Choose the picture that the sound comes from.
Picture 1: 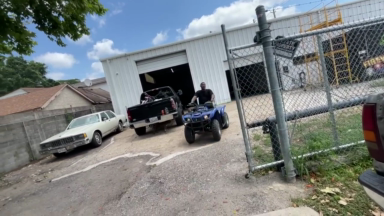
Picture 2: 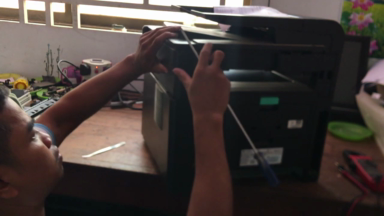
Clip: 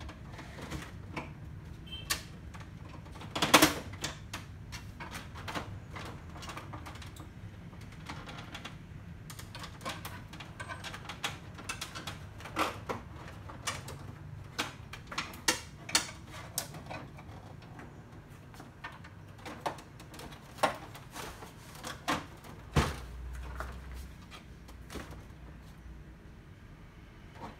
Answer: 2